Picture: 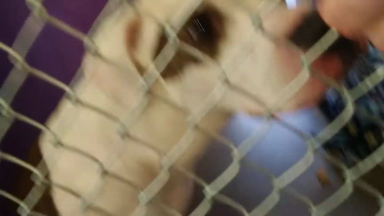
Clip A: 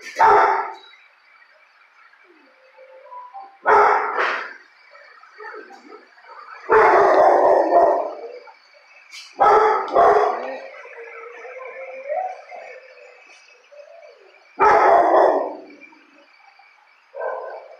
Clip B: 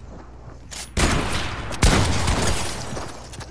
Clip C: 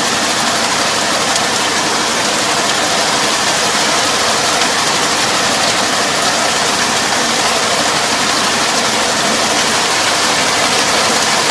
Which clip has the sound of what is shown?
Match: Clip A